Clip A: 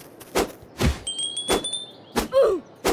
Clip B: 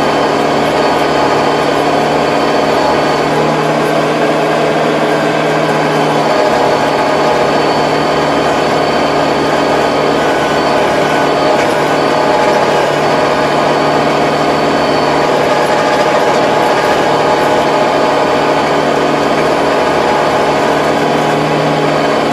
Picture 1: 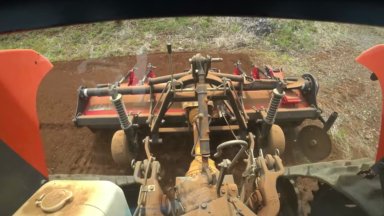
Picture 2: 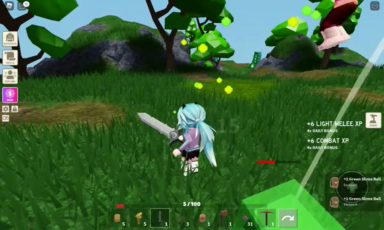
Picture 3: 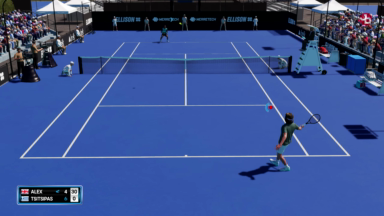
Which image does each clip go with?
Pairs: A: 2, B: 1